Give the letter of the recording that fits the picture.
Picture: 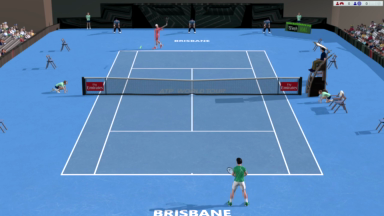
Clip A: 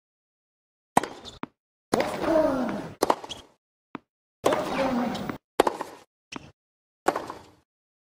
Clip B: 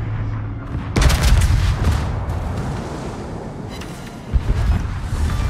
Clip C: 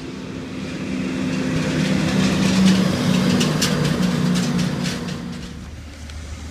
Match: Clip A